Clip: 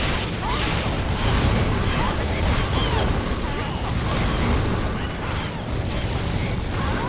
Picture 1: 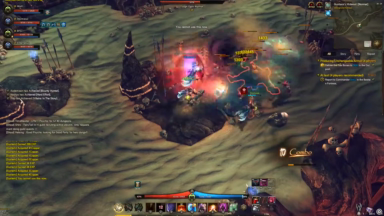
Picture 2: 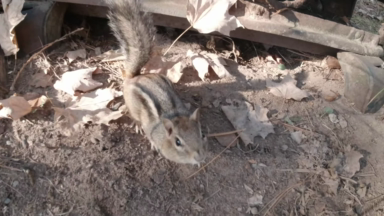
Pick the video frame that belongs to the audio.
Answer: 1